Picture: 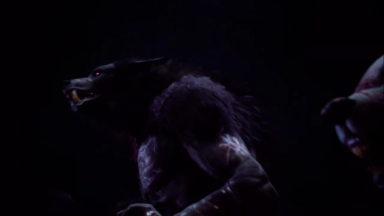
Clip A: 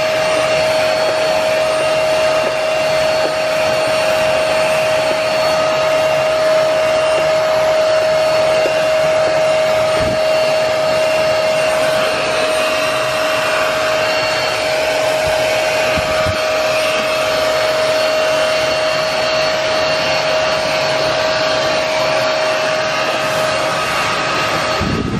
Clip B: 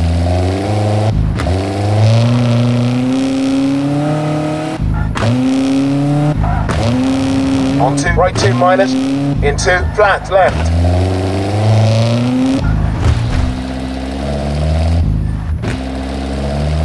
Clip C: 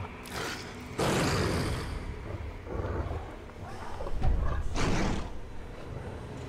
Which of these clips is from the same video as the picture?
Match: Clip C